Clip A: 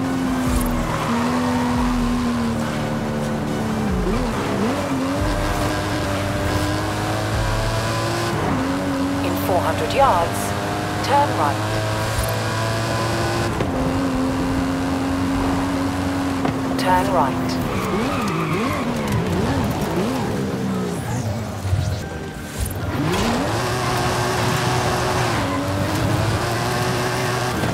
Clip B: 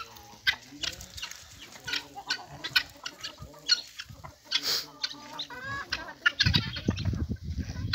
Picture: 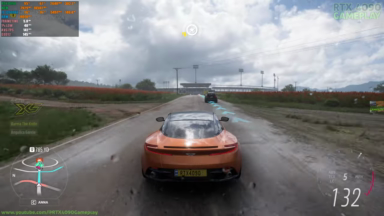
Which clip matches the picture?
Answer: A